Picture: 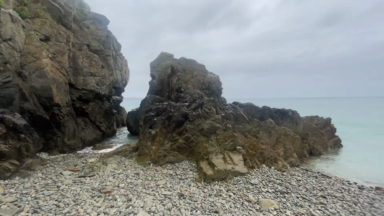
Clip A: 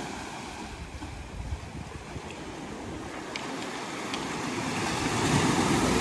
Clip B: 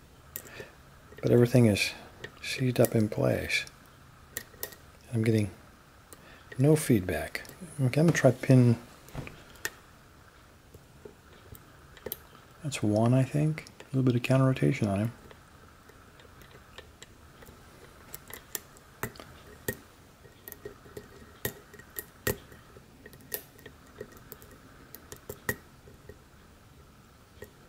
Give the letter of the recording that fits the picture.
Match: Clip A